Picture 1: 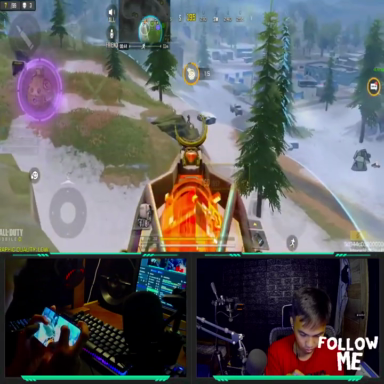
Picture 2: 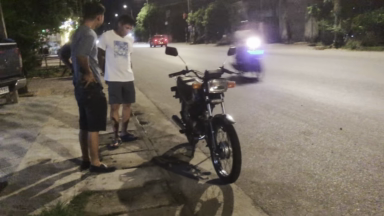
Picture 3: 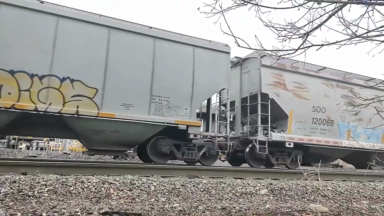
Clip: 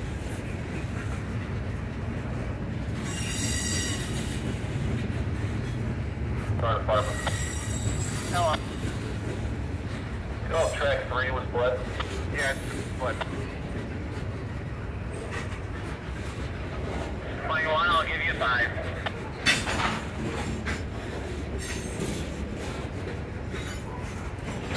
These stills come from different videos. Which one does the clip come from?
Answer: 3